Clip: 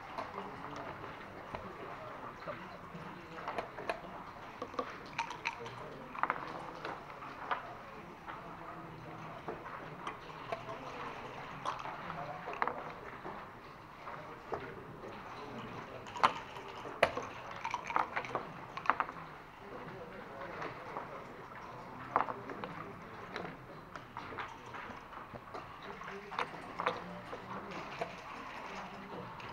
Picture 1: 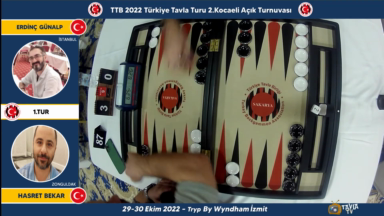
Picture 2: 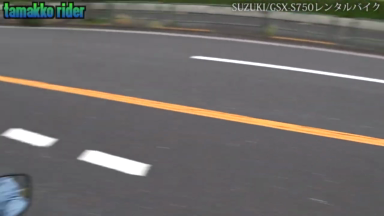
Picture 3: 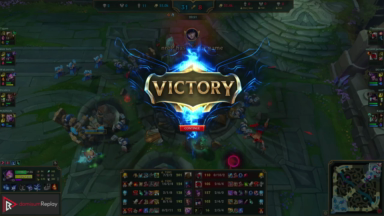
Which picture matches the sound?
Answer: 1